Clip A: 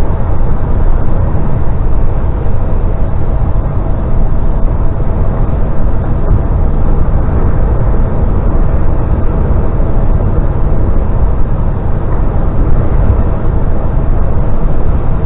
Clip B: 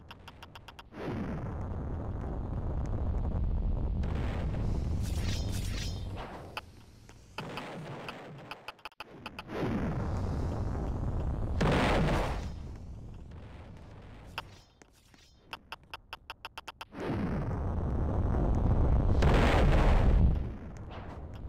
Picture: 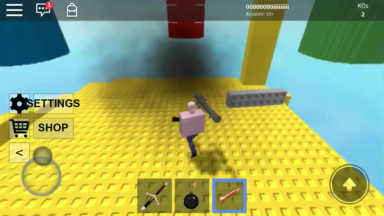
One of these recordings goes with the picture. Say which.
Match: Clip B